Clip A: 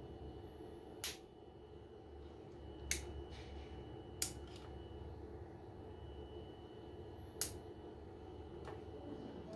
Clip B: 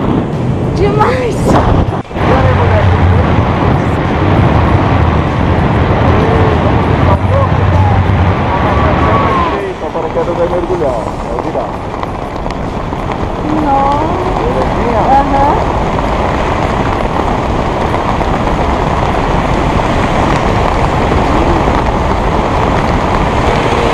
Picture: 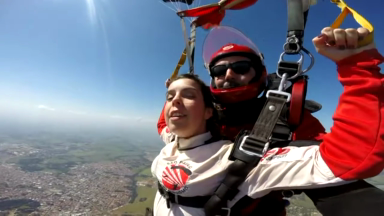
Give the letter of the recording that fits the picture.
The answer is B